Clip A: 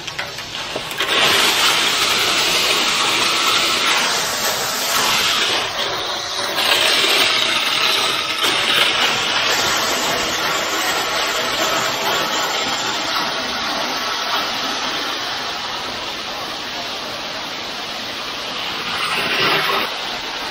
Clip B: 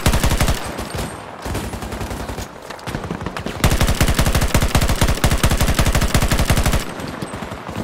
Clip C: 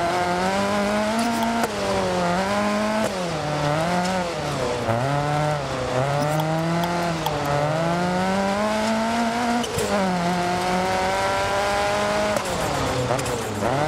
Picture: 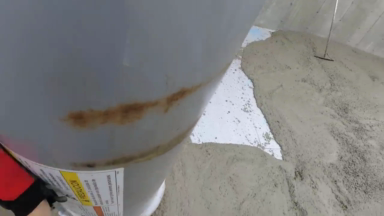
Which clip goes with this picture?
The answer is A